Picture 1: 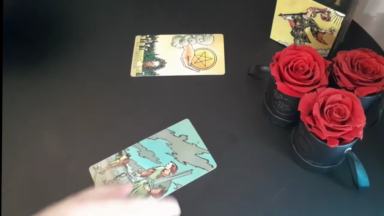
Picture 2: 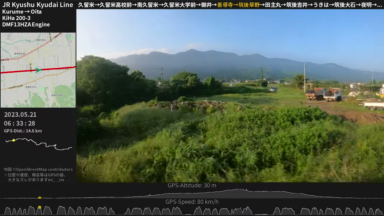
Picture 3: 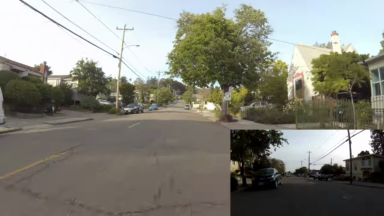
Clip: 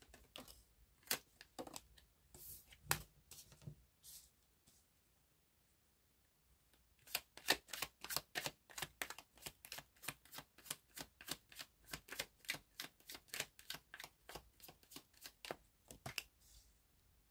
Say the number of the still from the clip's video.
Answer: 1